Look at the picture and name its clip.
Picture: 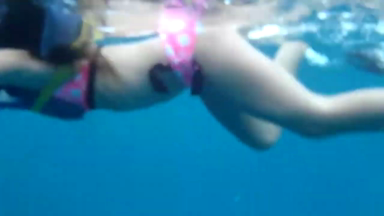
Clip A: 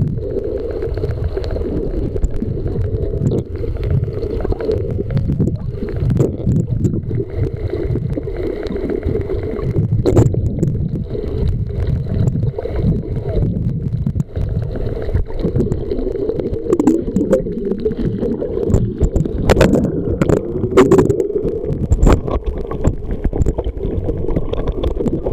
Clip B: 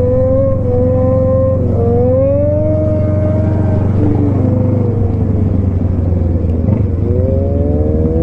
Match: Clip A